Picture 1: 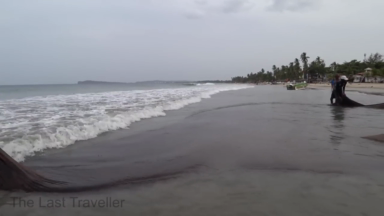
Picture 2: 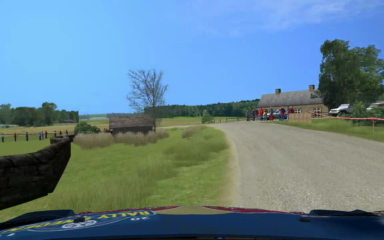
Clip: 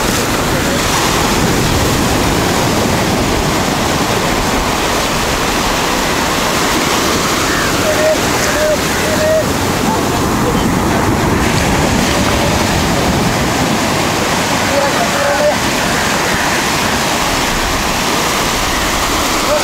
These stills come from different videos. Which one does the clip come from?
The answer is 1